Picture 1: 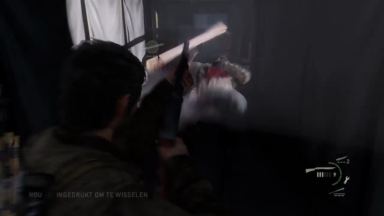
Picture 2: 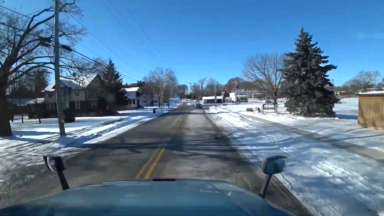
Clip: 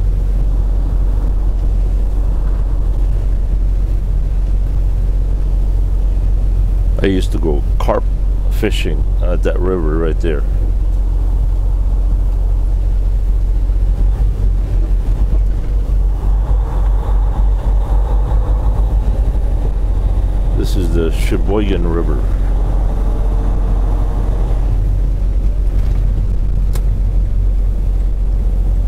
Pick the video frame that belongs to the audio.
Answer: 2